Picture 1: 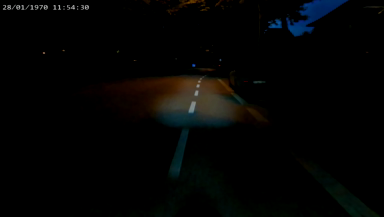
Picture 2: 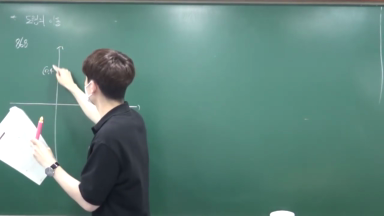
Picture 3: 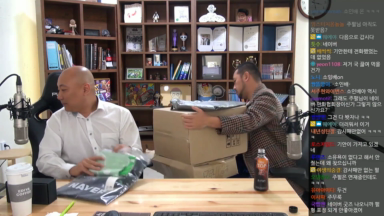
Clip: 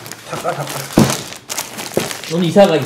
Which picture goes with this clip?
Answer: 3